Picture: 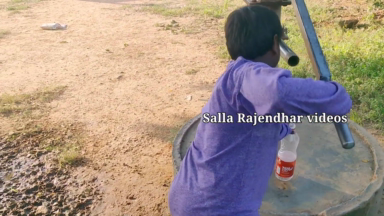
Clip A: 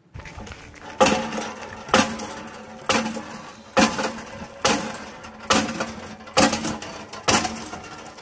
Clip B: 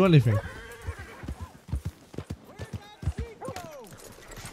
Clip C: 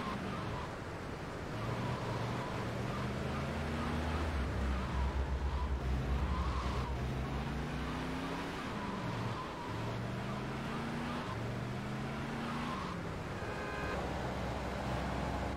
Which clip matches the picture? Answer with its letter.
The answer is A